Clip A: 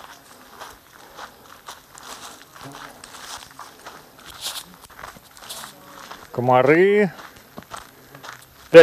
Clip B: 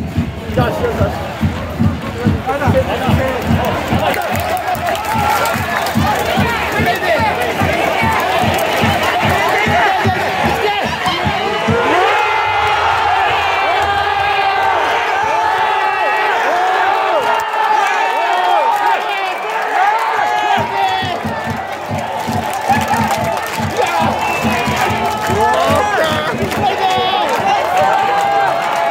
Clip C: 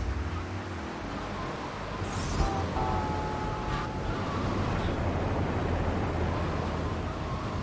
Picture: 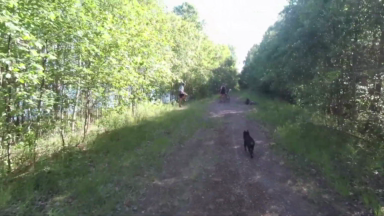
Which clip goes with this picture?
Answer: A